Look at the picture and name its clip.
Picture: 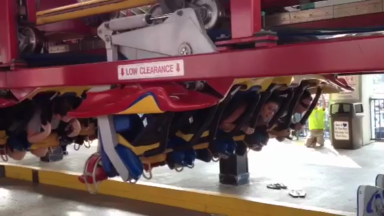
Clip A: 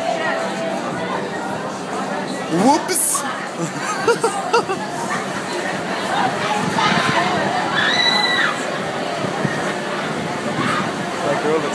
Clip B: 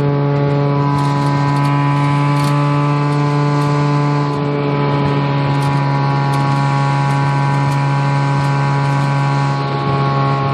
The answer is A